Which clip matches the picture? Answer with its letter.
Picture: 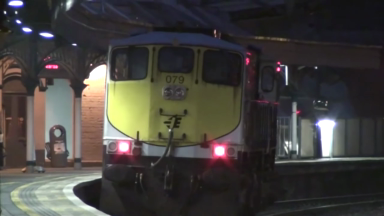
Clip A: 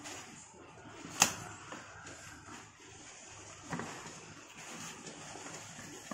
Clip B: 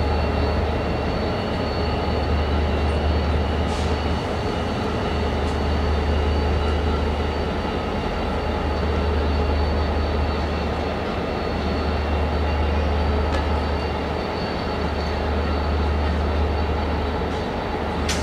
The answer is B